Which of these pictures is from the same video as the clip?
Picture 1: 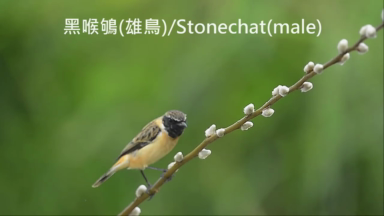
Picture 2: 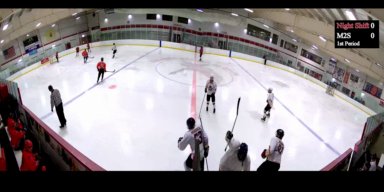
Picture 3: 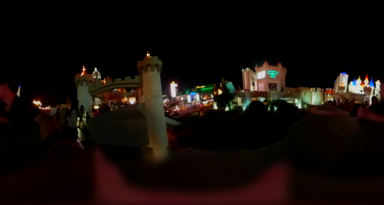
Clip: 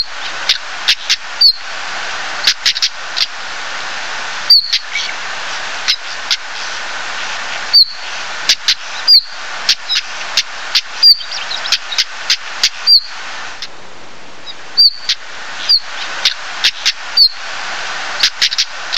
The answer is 1